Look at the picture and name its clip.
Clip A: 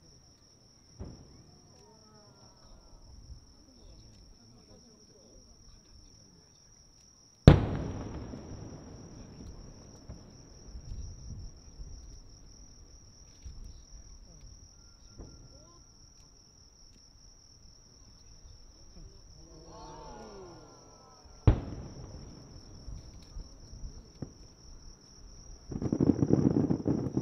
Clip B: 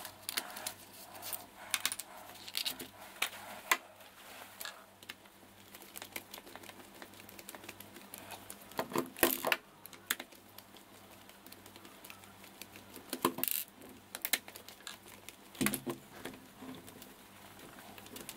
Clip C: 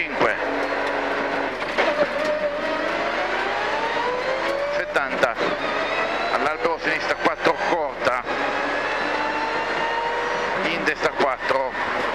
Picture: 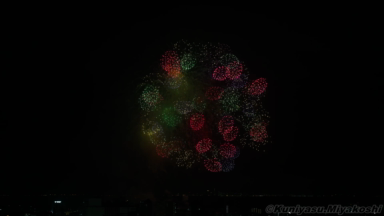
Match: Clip A